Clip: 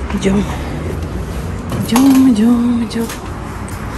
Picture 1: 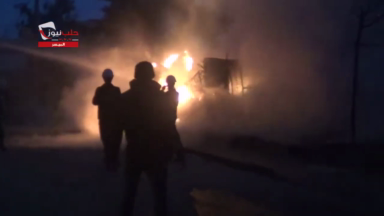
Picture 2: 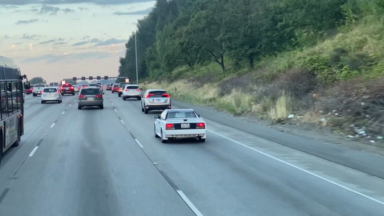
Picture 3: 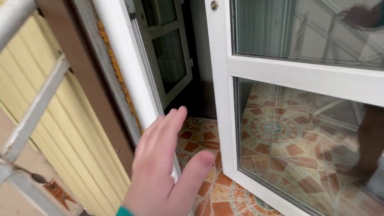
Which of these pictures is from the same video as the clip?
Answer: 3